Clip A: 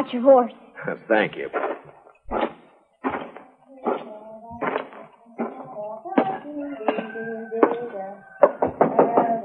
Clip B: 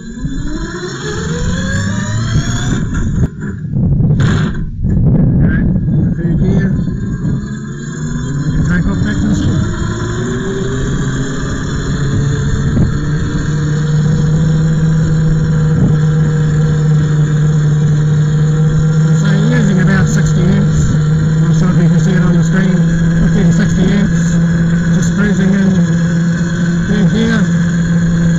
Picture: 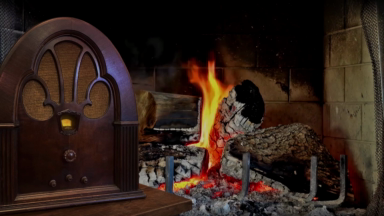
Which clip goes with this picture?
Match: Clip A